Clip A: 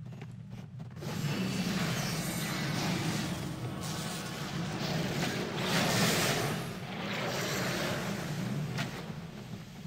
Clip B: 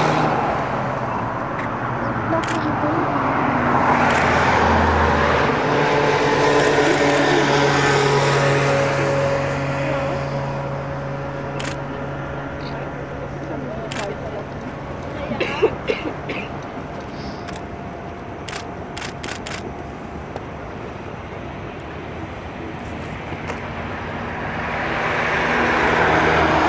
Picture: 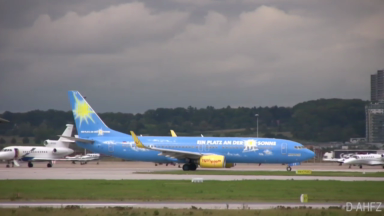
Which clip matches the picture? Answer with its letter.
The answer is B